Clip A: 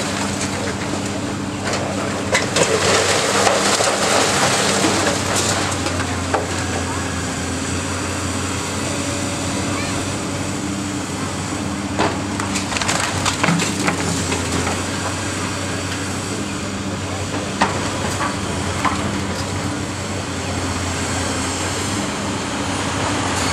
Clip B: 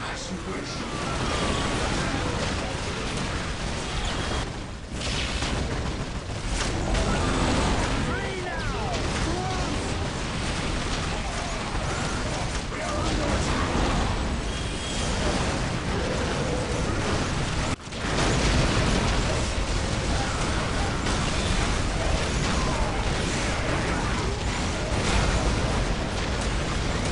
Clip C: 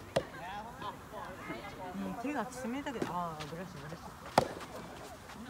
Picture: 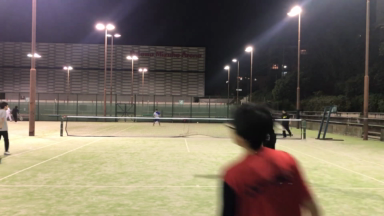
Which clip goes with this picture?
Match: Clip C